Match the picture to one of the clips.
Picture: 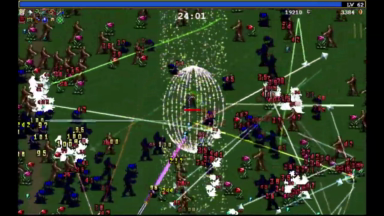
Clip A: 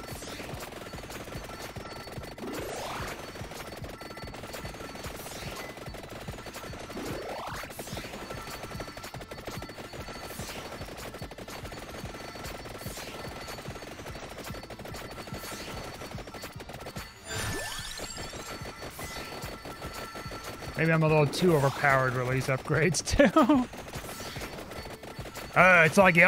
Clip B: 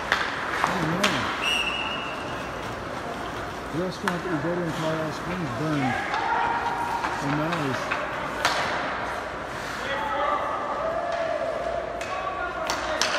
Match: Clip A